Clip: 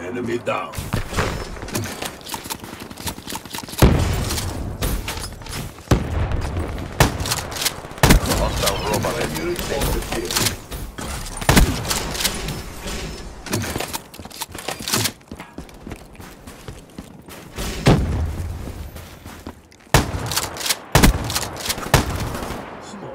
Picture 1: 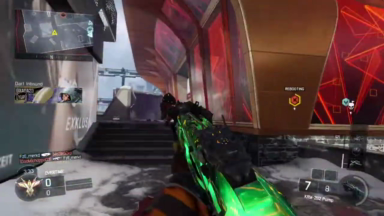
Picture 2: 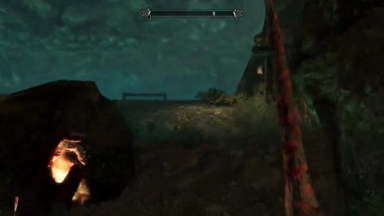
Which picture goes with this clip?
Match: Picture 1